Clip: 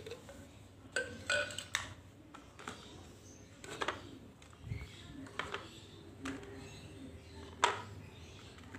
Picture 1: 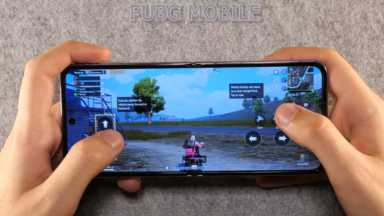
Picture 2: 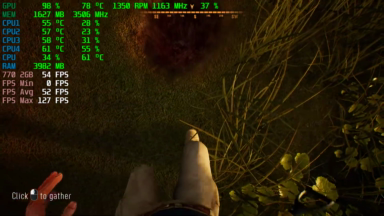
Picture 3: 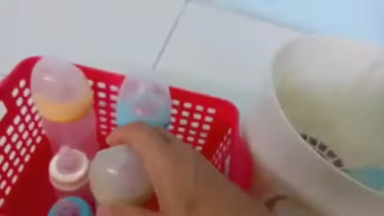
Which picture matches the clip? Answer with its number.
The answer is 3